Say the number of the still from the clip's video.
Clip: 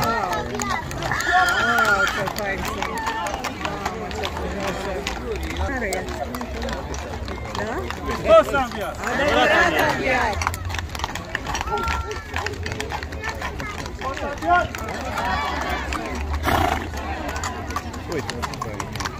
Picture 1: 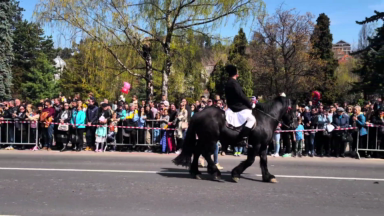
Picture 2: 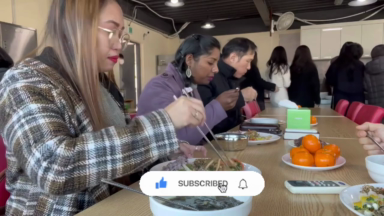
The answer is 1